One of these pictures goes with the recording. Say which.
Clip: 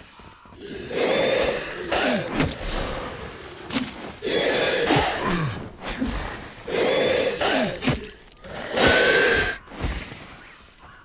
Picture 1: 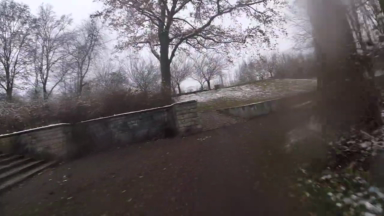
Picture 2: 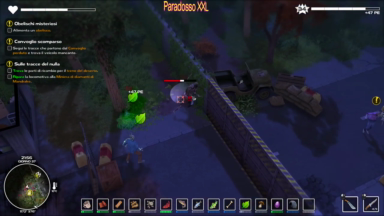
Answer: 2